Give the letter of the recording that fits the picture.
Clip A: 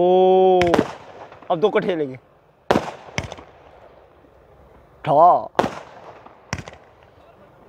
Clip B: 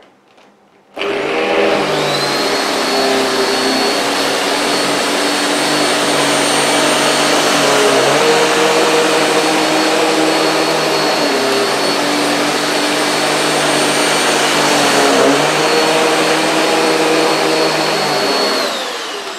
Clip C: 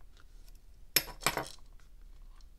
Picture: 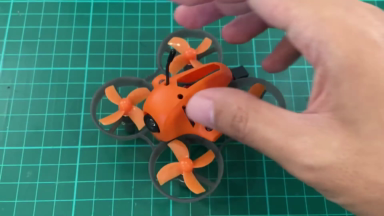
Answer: C